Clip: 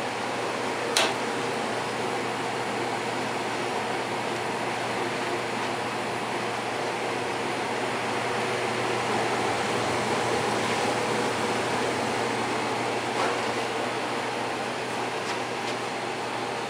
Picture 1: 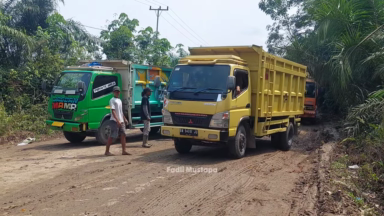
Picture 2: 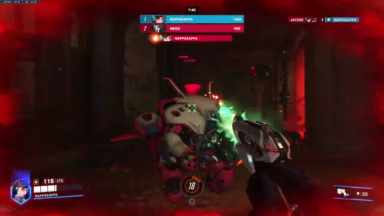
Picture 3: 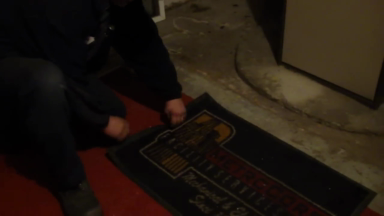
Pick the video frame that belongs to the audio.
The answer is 3